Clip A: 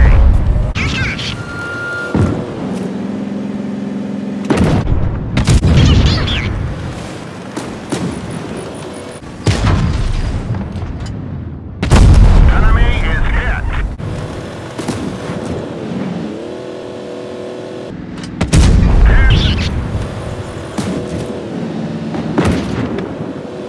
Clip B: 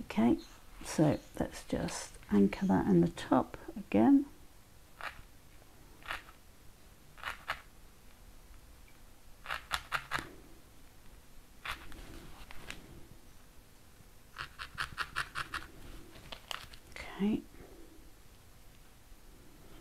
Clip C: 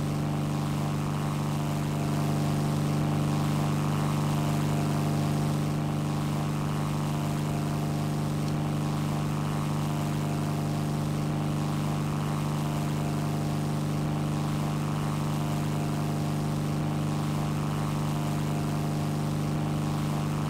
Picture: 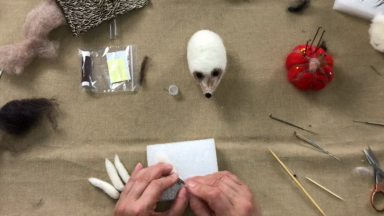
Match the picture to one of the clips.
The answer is B